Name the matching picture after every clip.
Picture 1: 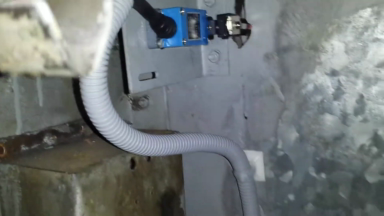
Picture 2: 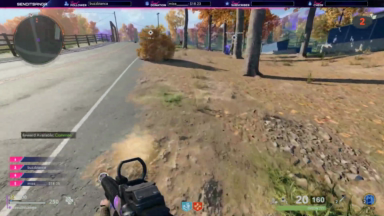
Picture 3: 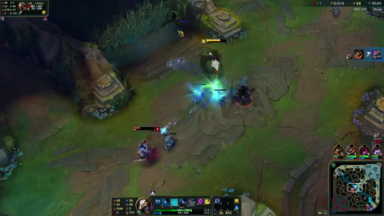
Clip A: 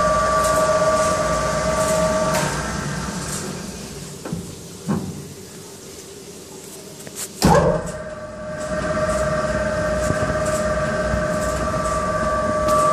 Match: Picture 1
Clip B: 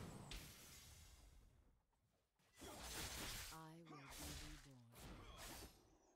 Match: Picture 3